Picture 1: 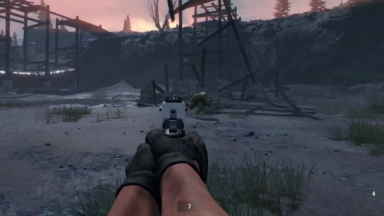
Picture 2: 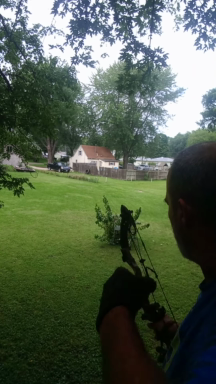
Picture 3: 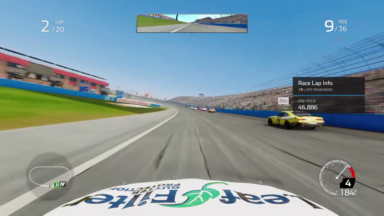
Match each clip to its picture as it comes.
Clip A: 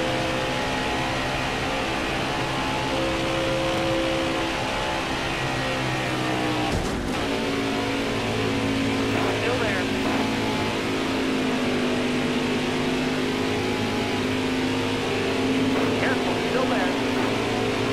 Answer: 3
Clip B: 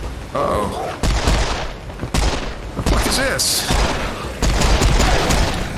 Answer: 1